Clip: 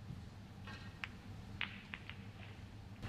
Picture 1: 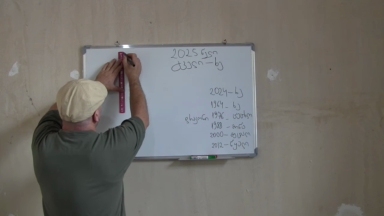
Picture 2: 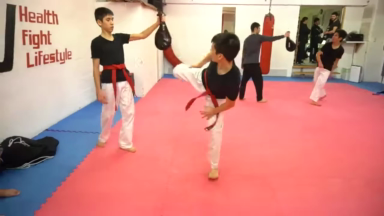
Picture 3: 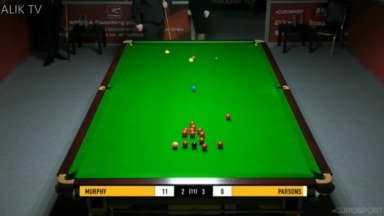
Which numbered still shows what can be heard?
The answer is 3